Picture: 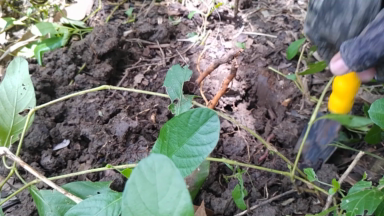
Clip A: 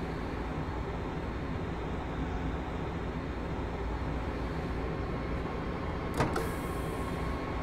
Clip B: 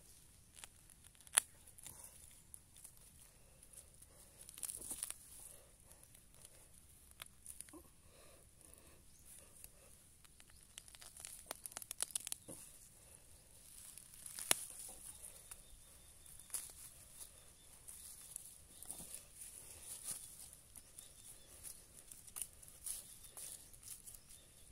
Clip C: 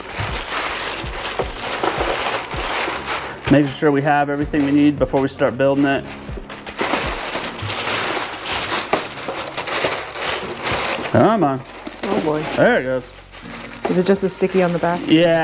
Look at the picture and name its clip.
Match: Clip B